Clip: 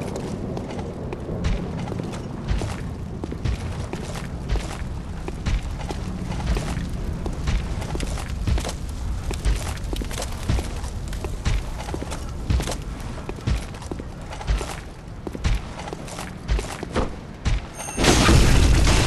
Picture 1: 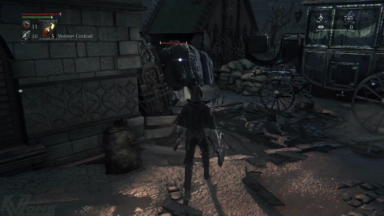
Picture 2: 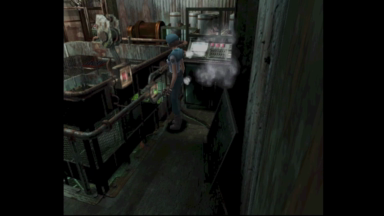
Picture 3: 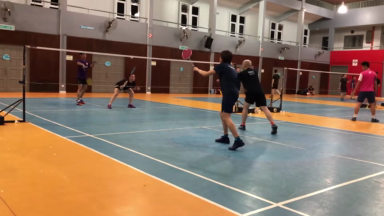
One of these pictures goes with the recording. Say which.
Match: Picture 1